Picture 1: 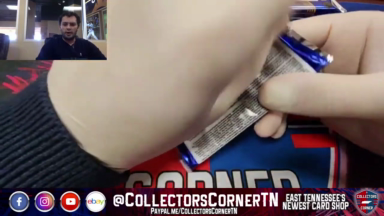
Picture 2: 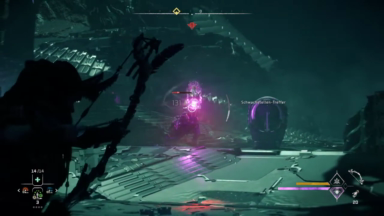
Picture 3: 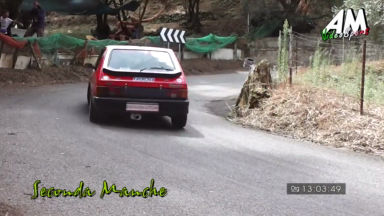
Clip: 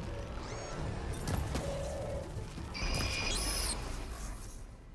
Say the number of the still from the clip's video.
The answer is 2